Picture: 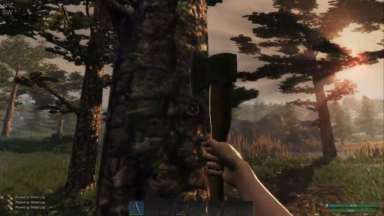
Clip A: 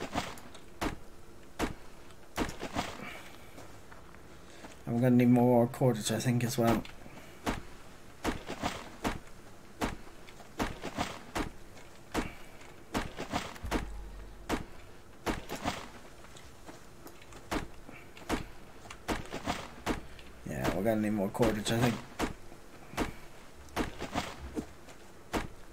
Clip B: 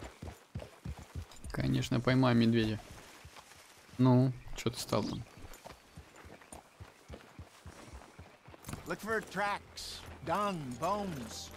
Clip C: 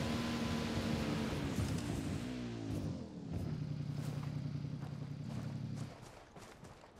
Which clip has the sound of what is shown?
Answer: A